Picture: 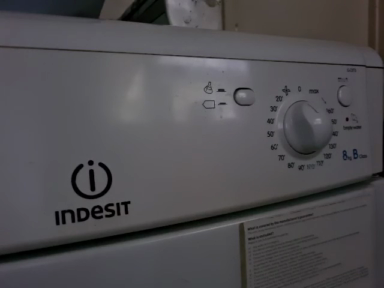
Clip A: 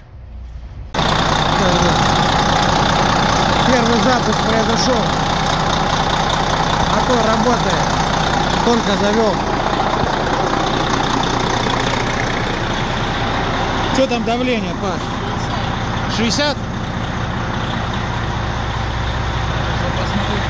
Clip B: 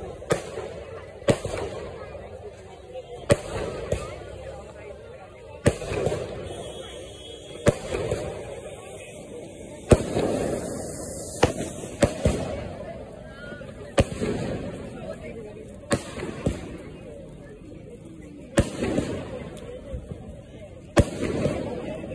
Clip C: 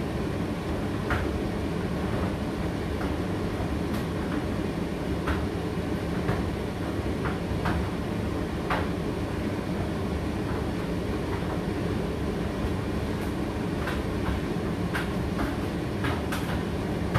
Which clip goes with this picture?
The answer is C